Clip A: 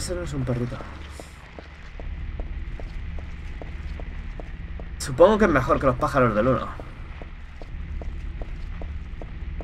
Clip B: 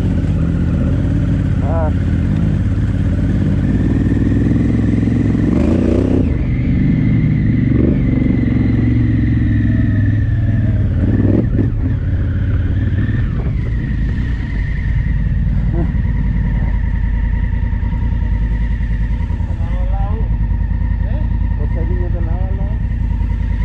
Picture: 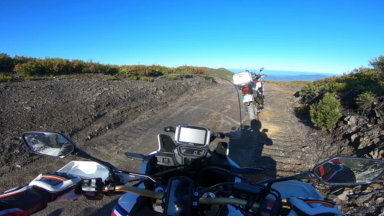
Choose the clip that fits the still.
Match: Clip B